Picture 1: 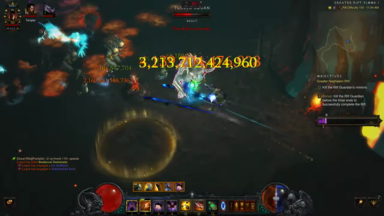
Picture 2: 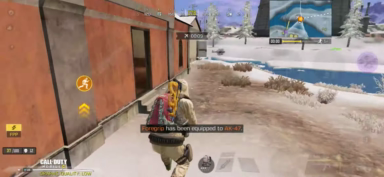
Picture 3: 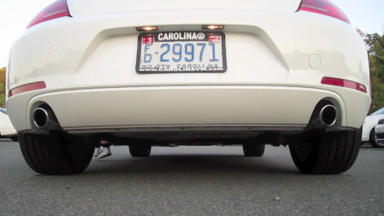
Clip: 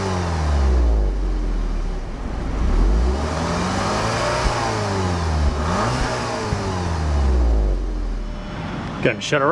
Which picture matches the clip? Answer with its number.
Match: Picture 3